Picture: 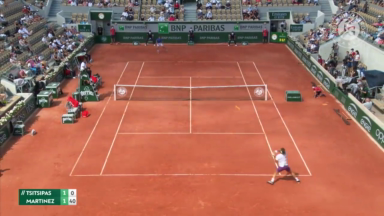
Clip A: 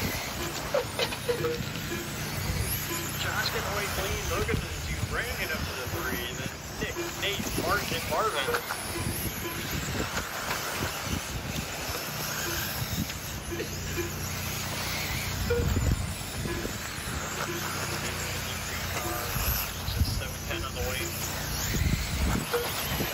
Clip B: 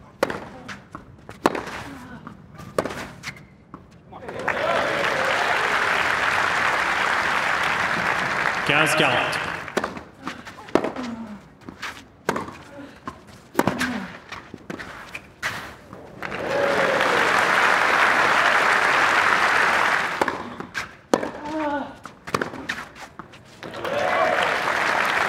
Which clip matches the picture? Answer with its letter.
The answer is B